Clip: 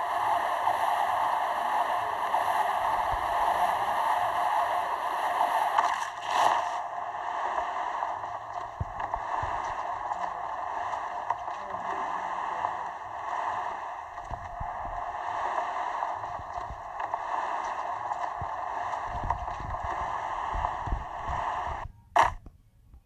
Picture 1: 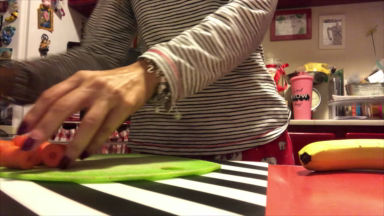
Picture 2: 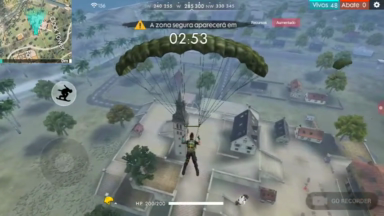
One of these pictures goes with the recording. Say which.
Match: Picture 2